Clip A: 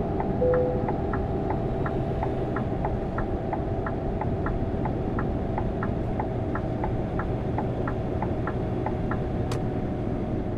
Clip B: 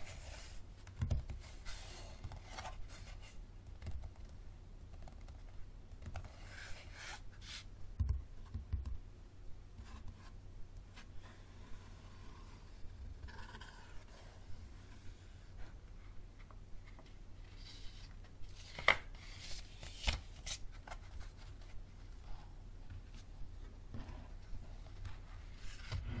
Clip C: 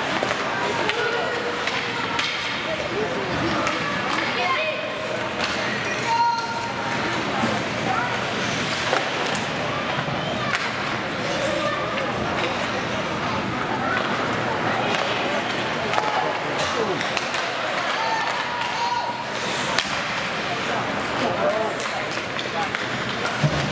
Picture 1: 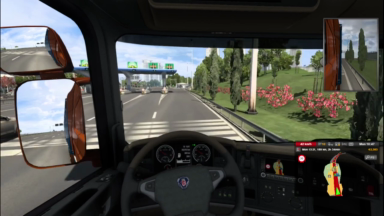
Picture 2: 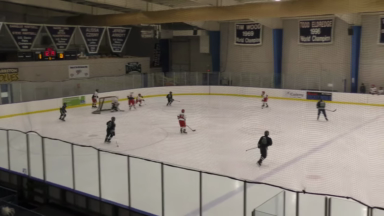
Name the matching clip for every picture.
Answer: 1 A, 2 C